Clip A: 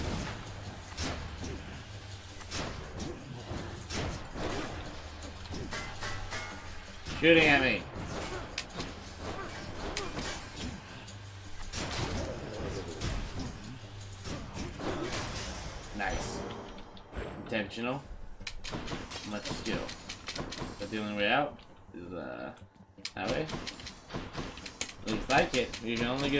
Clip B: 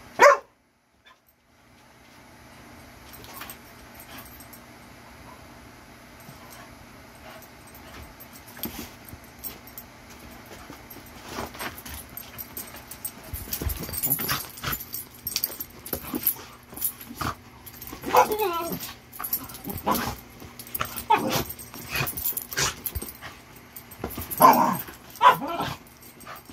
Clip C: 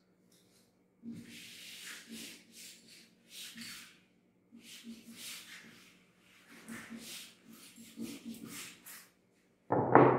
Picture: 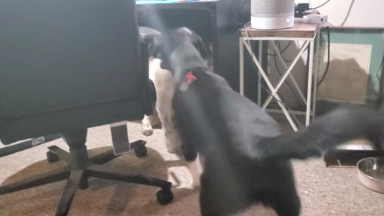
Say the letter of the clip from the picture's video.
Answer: B